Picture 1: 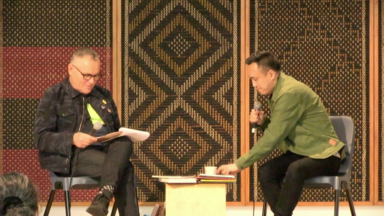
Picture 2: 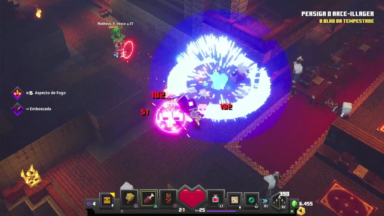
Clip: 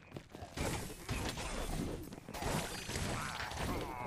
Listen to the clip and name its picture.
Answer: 2